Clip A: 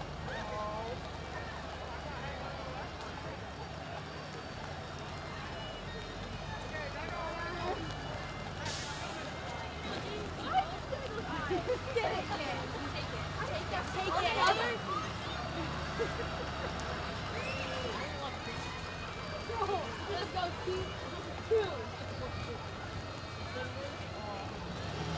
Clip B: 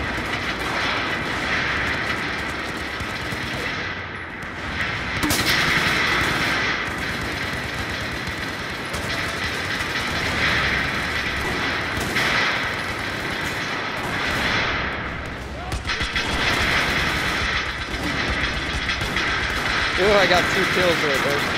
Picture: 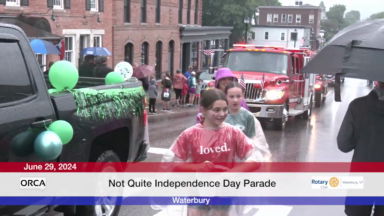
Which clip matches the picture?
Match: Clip A